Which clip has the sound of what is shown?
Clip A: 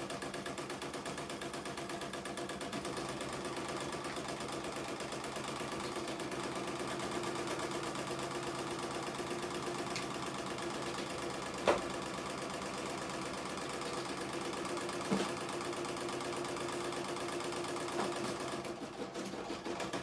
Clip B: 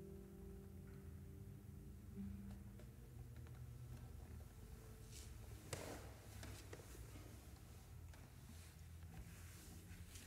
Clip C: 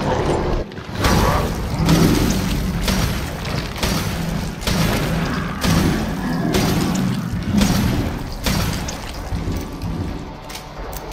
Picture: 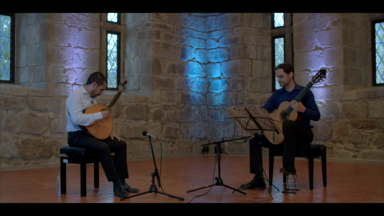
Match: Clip B